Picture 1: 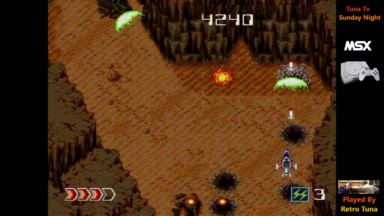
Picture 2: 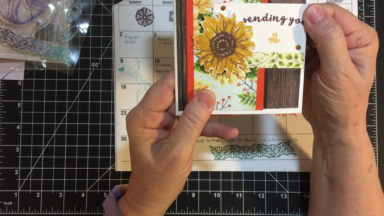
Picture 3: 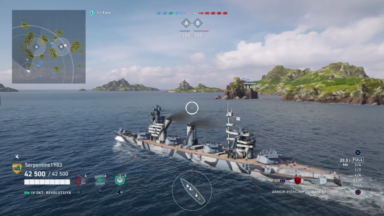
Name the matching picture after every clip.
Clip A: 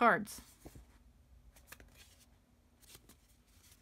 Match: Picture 2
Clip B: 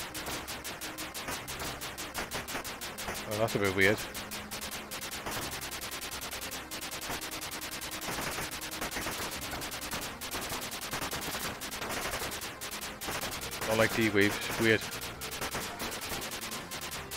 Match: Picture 1